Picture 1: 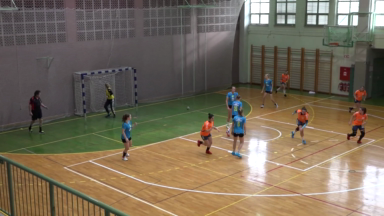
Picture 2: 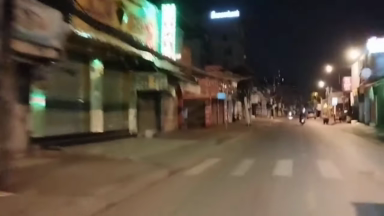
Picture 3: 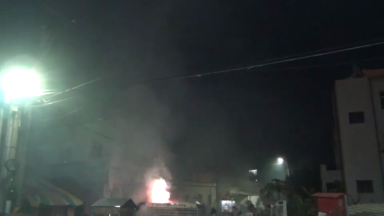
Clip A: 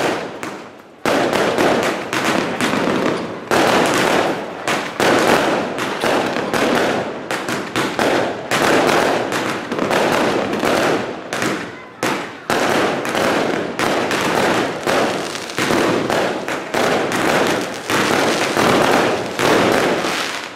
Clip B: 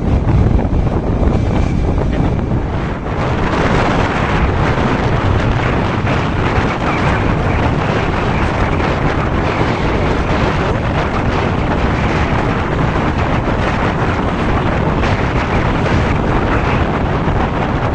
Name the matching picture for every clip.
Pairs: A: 3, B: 2